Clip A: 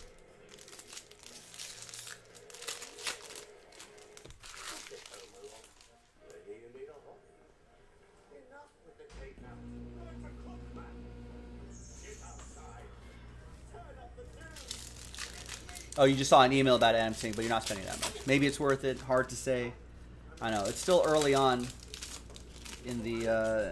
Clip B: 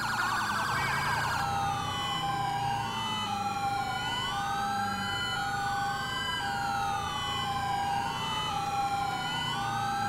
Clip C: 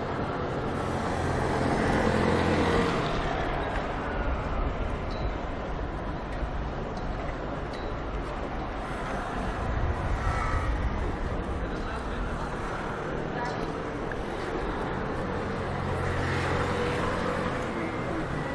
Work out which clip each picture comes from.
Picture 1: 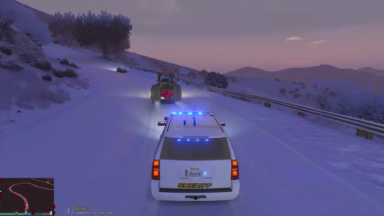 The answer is B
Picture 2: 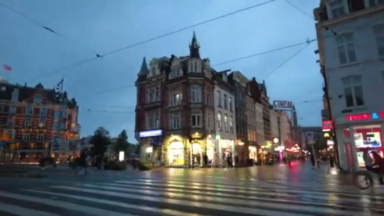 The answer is C